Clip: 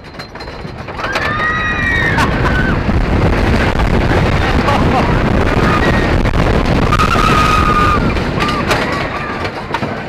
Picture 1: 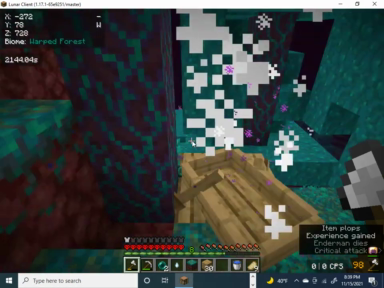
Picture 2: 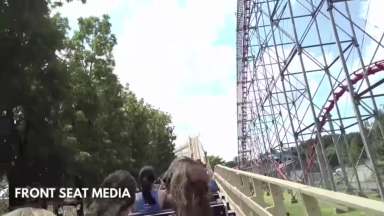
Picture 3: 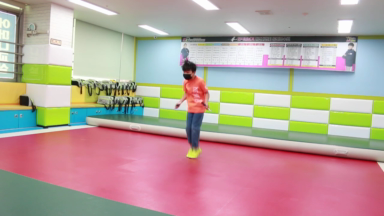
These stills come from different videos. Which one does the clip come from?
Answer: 2